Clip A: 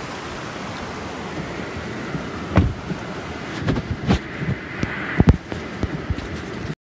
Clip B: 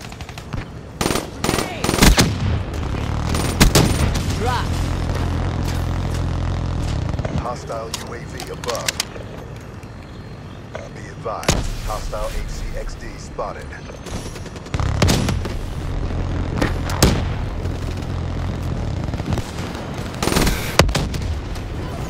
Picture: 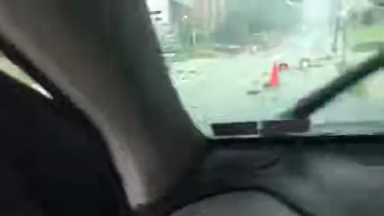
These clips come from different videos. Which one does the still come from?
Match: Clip A